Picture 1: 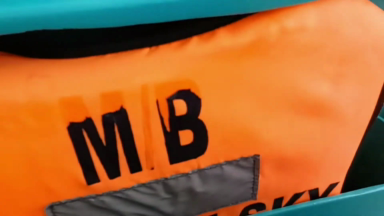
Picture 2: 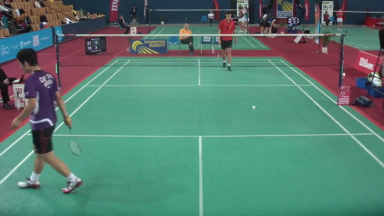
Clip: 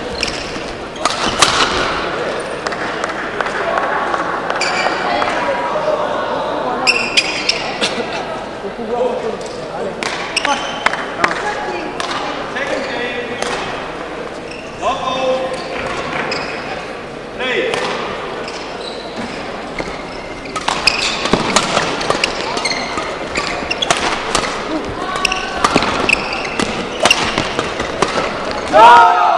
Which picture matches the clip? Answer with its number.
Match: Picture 2